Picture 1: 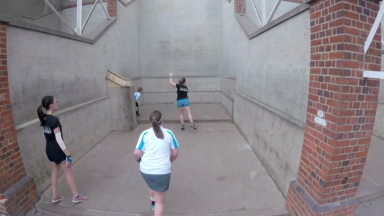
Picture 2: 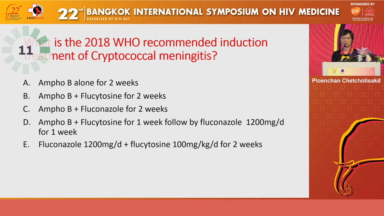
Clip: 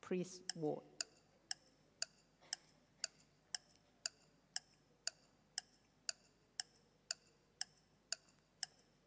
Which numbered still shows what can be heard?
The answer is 2